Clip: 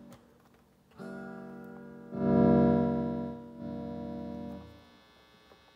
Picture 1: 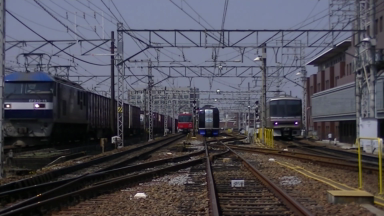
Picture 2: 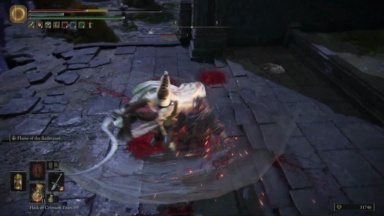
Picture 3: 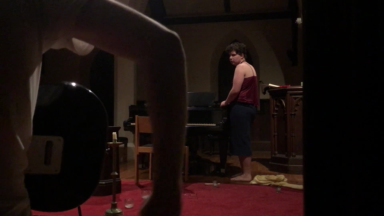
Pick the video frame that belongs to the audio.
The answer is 3